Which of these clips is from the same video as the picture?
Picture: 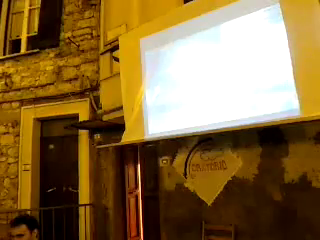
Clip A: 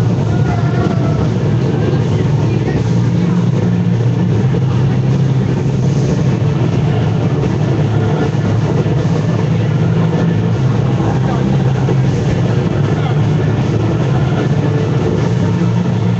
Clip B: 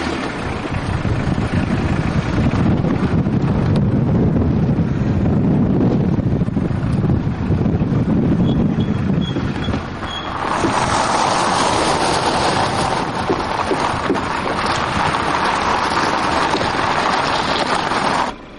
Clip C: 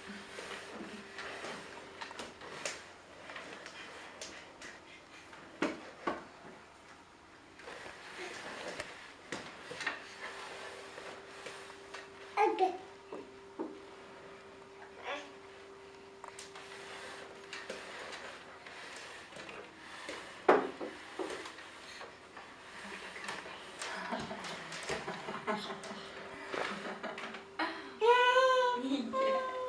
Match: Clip A